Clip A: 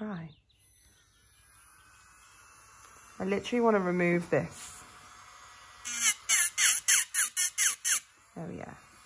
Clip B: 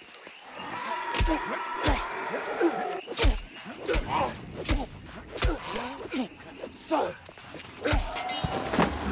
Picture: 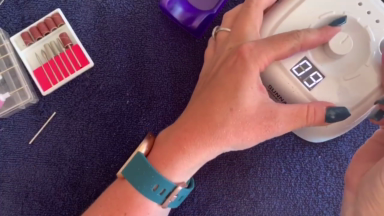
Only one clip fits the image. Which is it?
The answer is A